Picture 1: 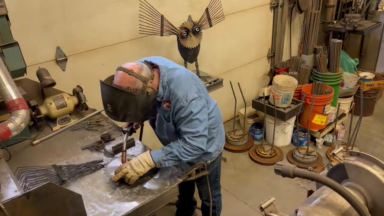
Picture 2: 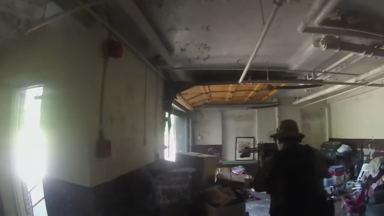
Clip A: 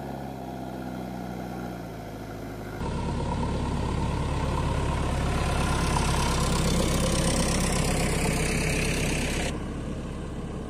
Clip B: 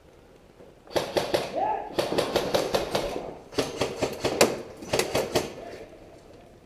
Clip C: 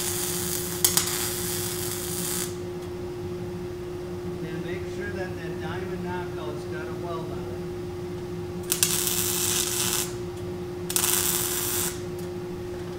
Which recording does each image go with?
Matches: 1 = C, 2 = B